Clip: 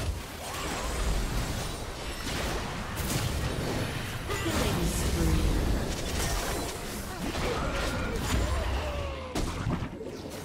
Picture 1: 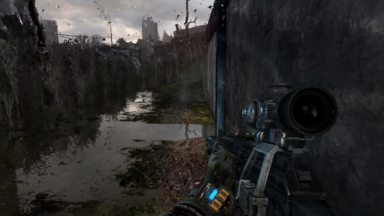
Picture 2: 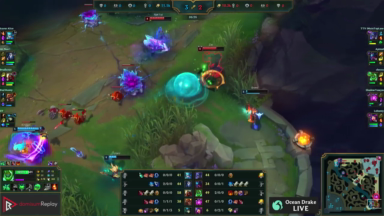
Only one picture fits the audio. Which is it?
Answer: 2